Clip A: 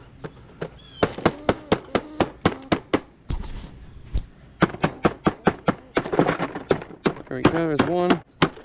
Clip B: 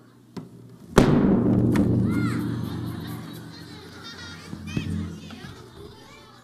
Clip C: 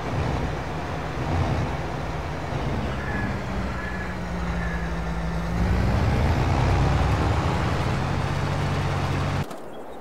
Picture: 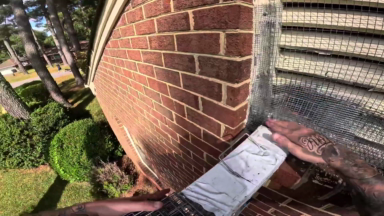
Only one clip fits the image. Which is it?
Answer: A